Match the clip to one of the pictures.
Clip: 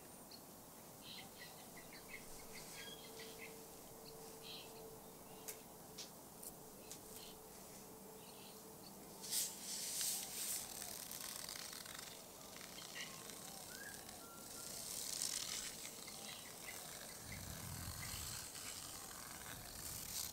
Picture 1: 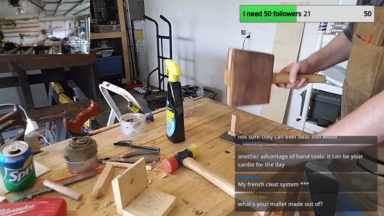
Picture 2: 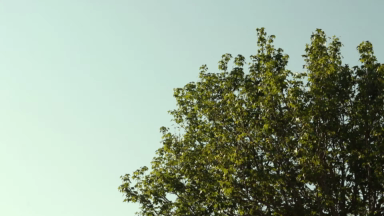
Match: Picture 2